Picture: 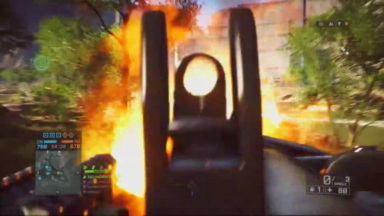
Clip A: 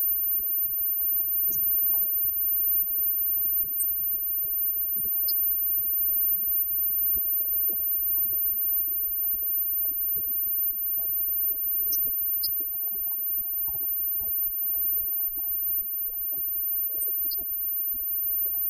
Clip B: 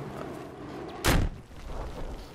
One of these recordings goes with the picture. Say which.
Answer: B